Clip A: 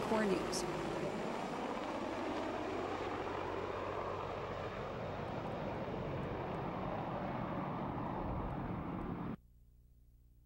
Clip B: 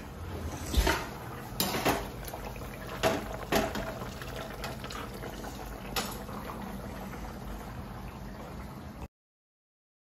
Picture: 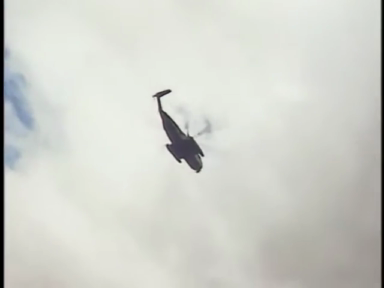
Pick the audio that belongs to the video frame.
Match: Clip A